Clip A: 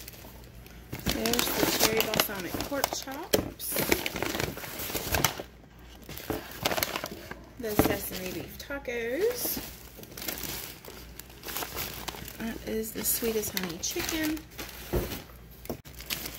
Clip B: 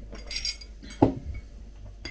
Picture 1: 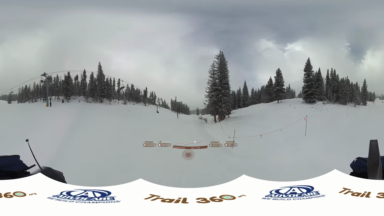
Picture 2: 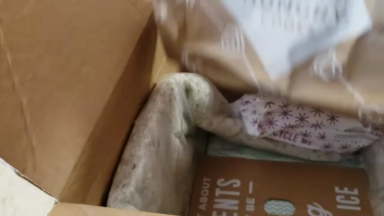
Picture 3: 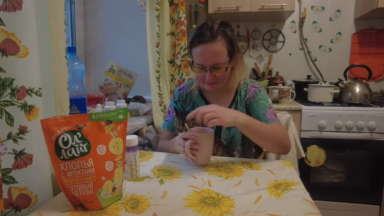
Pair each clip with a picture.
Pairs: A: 2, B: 3